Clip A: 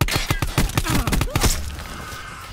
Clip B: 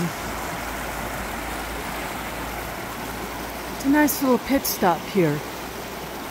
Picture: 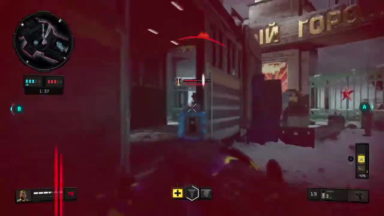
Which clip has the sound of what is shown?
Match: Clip A